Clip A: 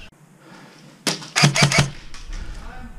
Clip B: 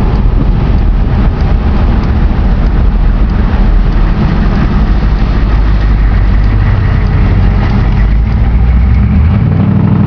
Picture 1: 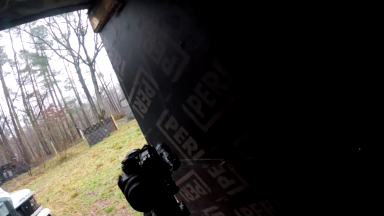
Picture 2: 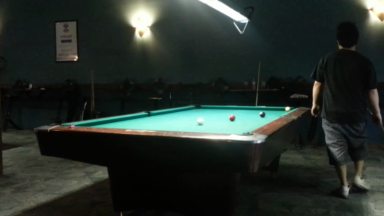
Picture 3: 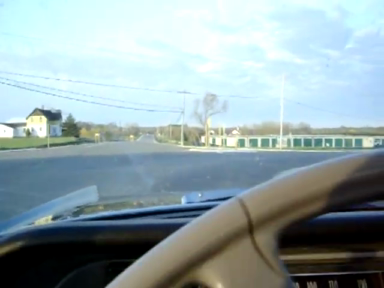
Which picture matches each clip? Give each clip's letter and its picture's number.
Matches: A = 1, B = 3